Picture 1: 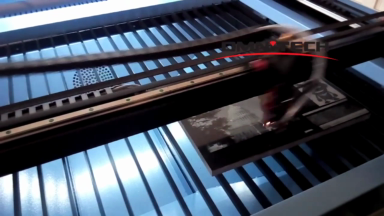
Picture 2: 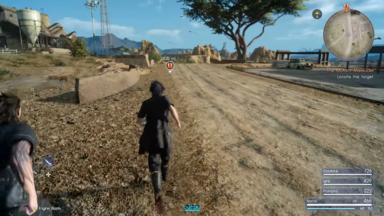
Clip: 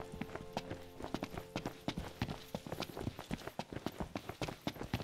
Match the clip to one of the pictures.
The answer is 2